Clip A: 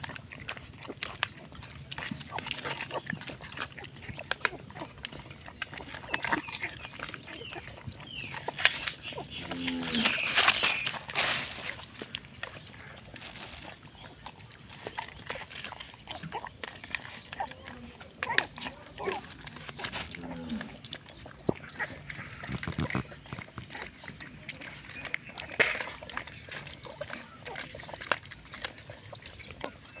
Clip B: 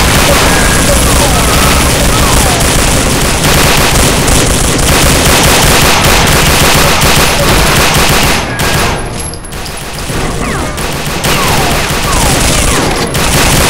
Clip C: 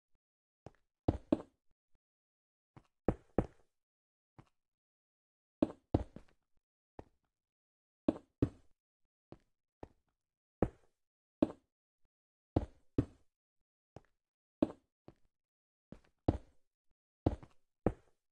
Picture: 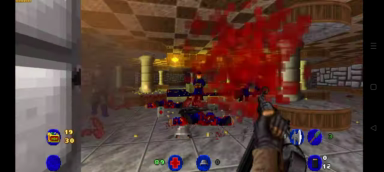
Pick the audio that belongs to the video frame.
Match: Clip B